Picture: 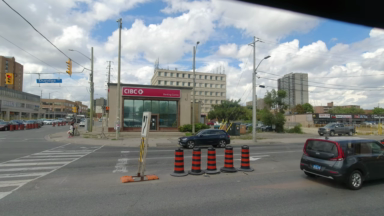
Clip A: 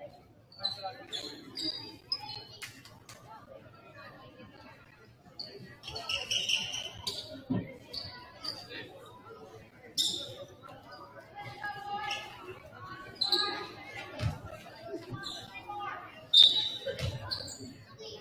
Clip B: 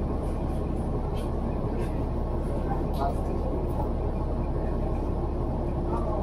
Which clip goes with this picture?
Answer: B